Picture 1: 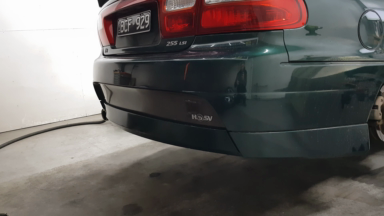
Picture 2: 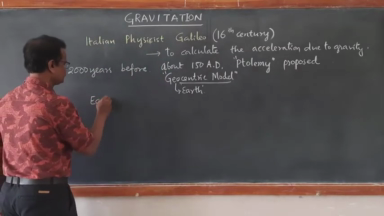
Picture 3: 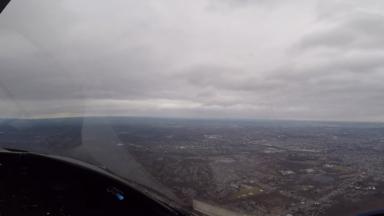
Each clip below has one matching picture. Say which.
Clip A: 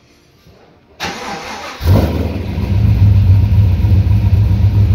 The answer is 1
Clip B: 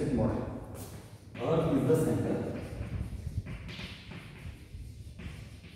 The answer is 2